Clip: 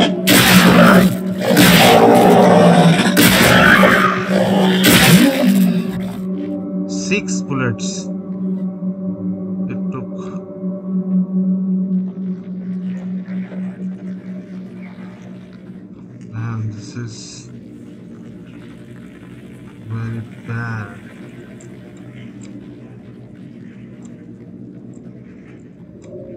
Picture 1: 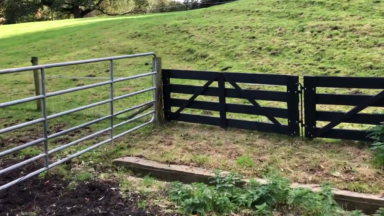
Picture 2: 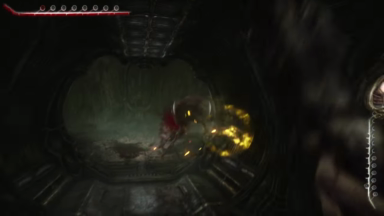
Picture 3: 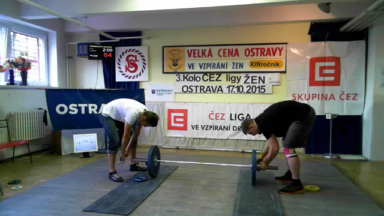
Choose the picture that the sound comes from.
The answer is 2